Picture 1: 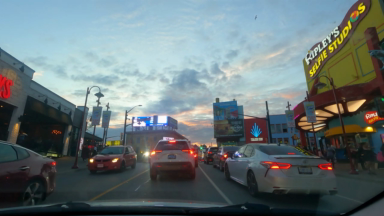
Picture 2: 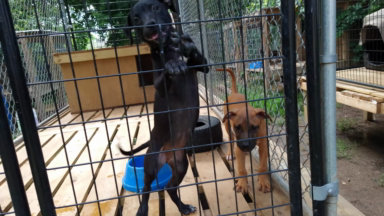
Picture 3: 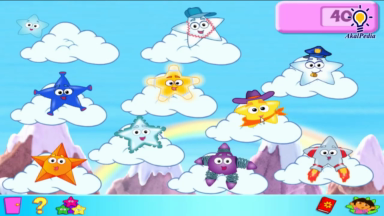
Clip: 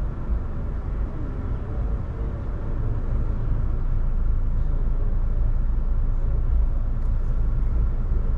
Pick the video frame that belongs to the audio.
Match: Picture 1